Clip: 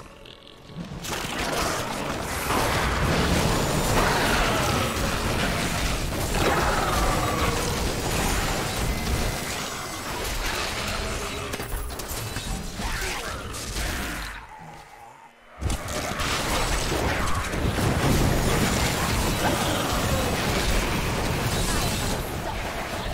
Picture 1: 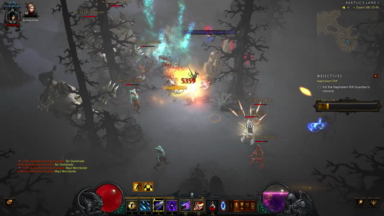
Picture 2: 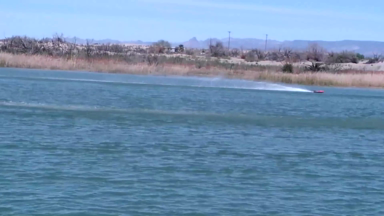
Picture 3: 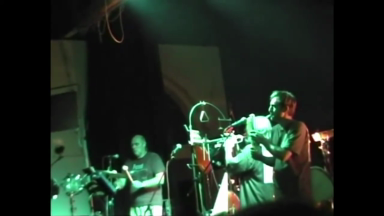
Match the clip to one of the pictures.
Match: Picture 1